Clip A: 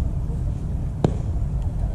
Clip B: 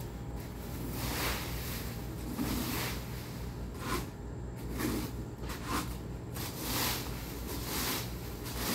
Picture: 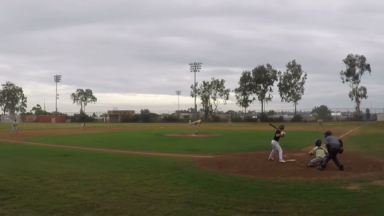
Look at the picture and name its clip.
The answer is A